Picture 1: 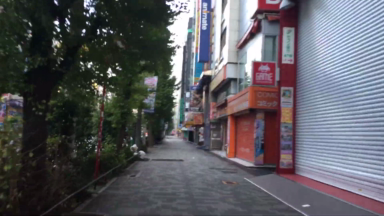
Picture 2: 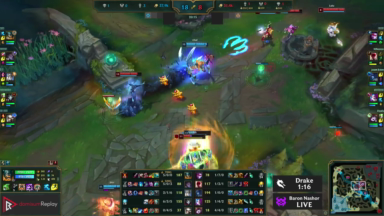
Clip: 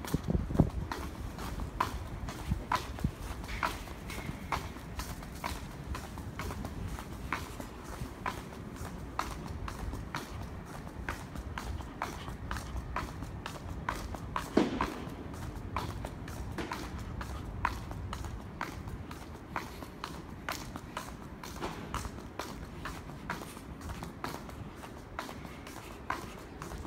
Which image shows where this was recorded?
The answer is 1